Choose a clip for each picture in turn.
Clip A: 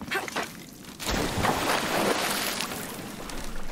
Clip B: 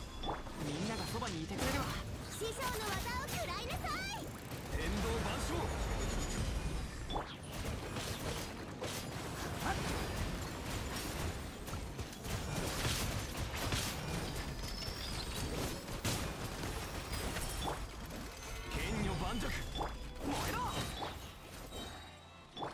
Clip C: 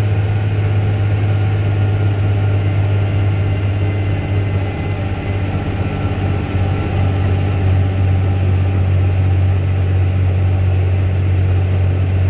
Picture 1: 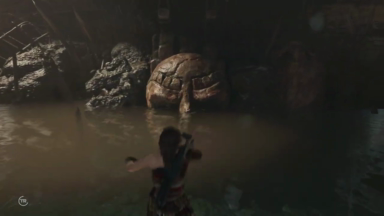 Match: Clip A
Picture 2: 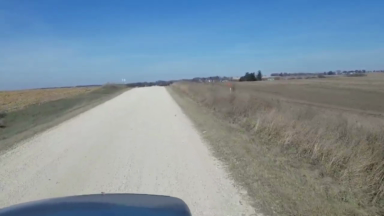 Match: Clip C